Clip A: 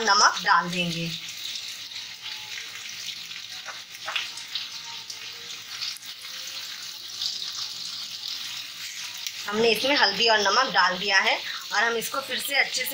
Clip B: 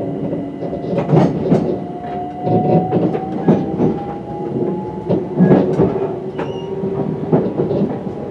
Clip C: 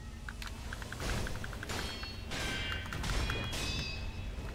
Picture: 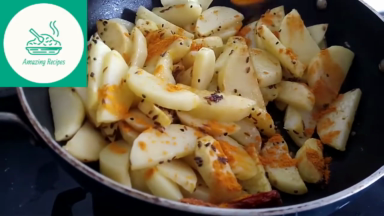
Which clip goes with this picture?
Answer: A